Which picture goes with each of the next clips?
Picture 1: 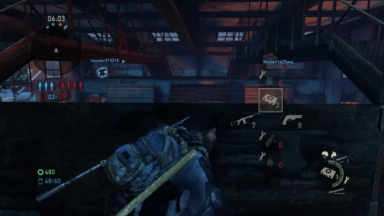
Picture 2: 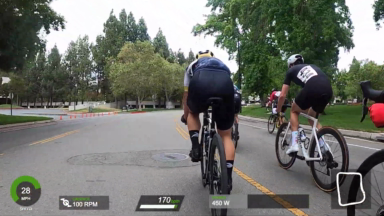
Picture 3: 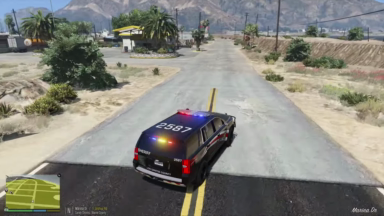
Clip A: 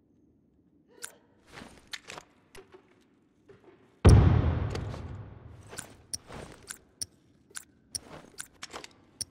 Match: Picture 1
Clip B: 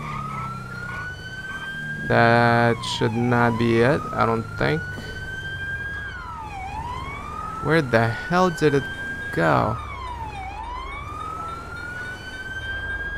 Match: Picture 3